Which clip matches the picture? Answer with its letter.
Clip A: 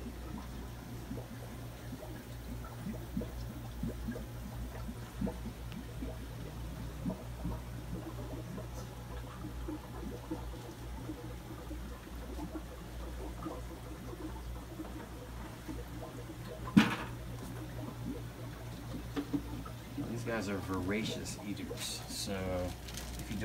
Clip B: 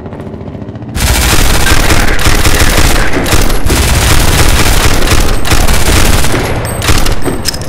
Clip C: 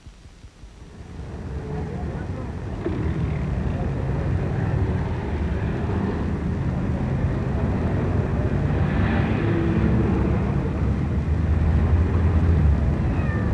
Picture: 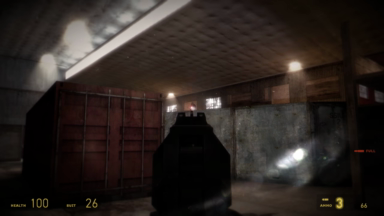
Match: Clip B